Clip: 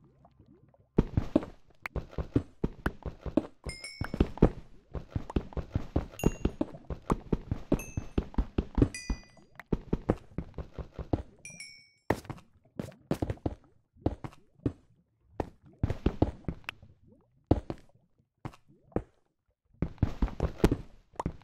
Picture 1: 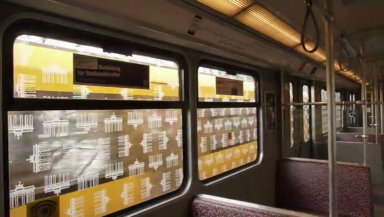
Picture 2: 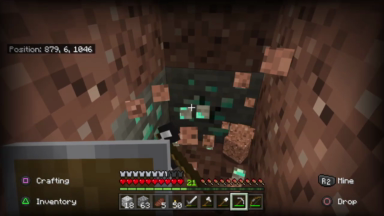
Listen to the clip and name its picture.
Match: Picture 2